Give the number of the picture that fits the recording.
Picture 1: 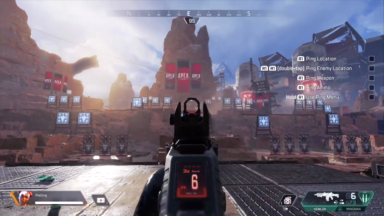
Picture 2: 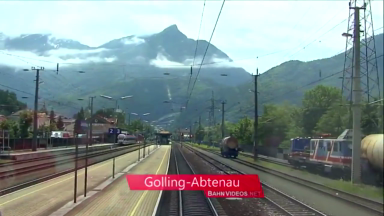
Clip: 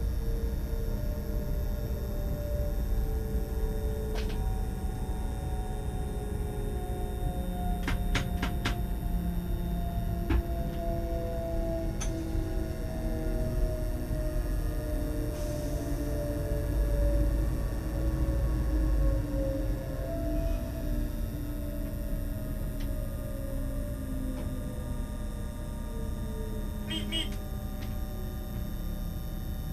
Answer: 2